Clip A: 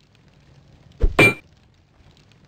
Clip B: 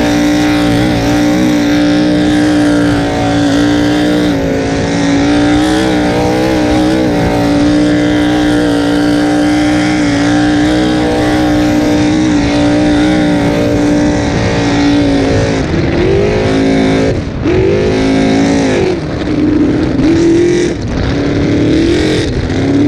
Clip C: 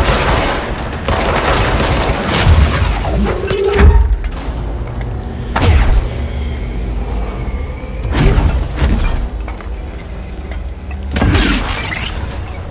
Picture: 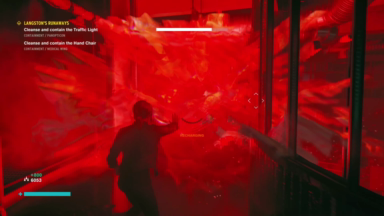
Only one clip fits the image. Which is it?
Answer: C